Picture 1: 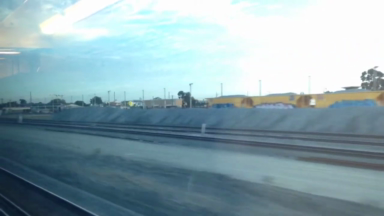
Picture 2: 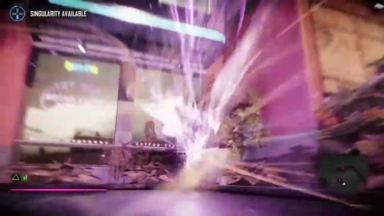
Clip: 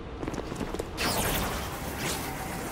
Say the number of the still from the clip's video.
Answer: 2